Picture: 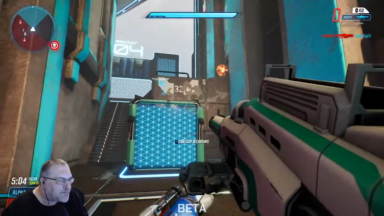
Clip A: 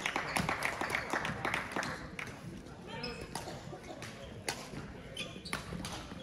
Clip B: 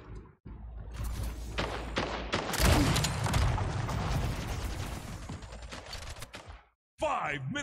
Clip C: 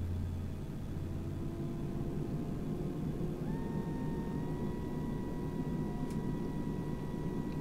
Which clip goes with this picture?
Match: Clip B